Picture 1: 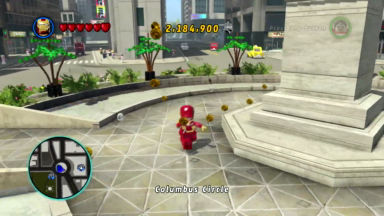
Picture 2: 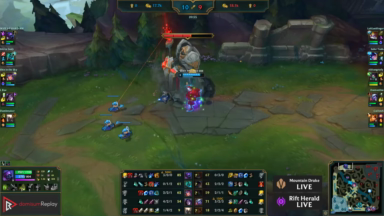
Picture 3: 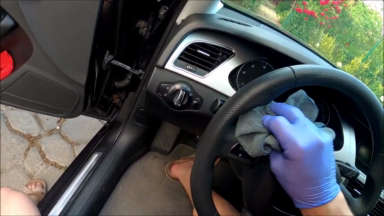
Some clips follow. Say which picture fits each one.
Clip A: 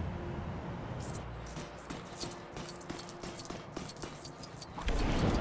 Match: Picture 1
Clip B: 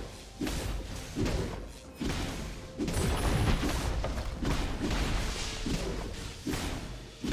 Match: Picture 2